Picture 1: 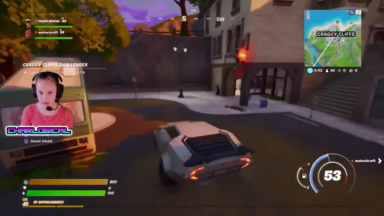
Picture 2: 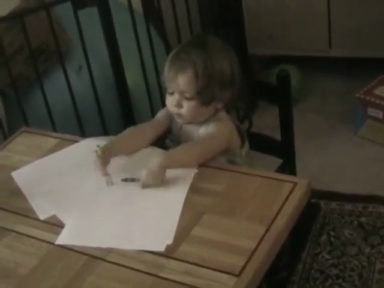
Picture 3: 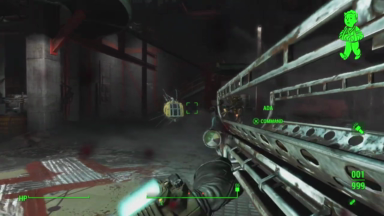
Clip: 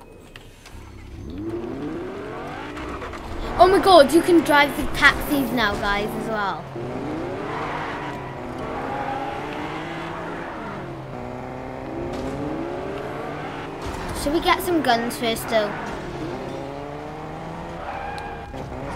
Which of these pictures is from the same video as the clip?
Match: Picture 1